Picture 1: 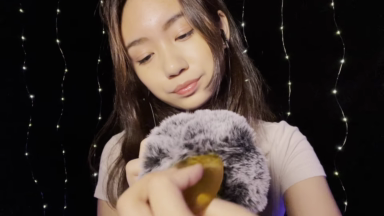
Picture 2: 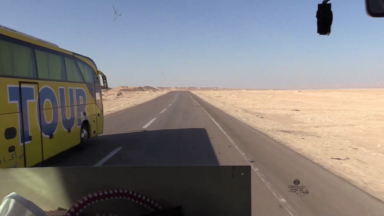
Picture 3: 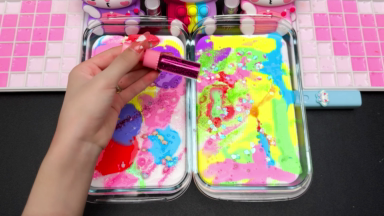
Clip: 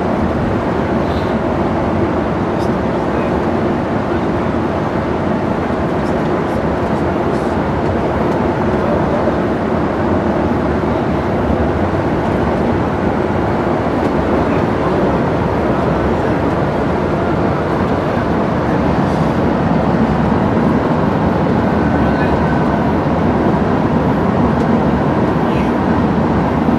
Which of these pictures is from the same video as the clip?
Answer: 2